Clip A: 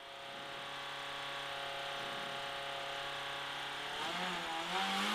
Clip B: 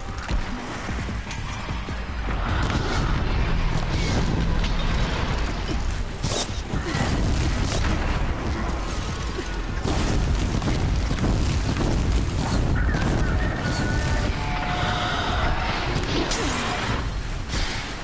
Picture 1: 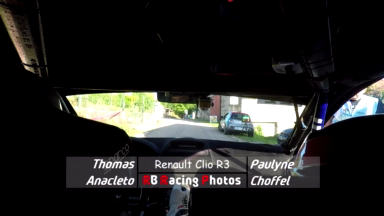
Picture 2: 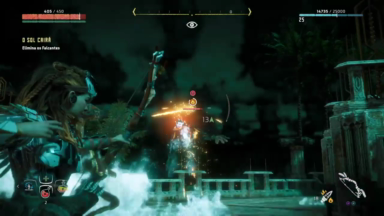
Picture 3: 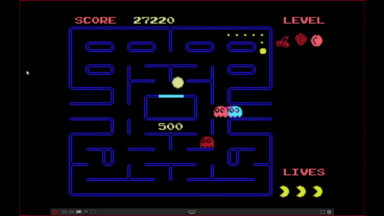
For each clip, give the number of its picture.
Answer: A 1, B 2